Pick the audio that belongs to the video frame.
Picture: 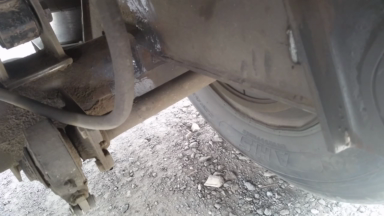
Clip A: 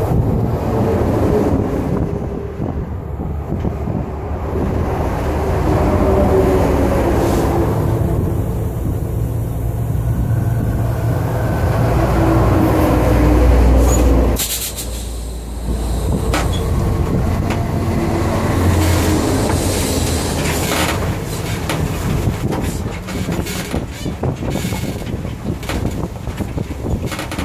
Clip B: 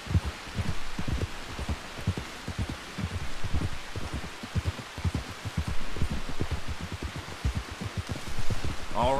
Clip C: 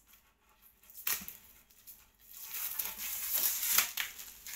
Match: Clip A